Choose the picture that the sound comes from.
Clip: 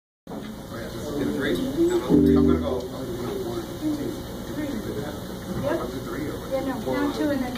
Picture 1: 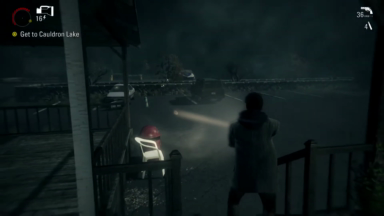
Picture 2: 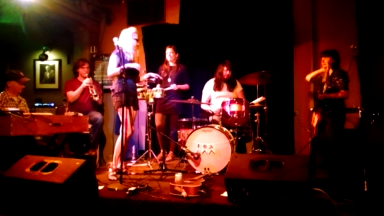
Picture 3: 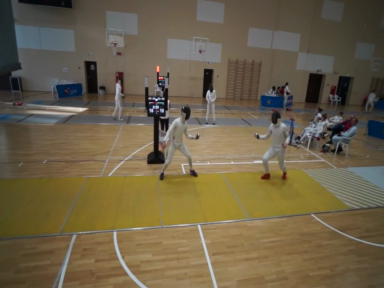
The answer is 2